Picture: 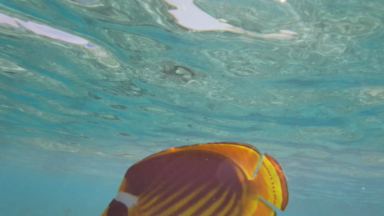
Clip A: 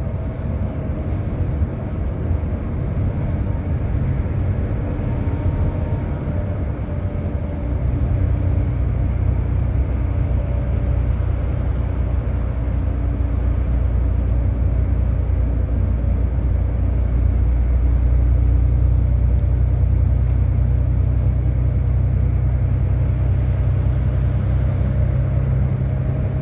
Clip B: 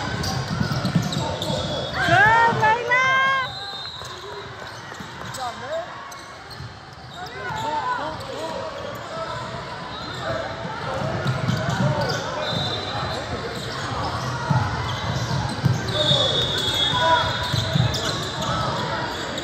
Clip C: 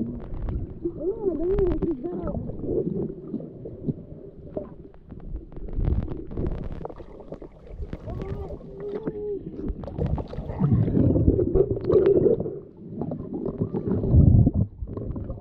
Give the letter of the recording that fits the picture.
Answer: C